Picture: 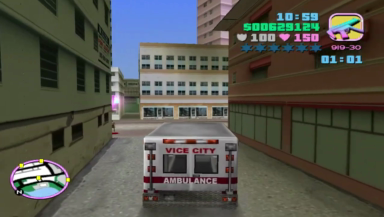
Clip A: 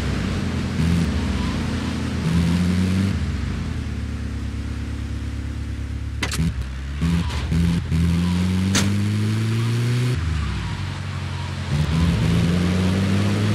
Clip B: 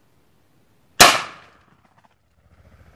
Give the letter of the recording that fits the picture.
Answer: A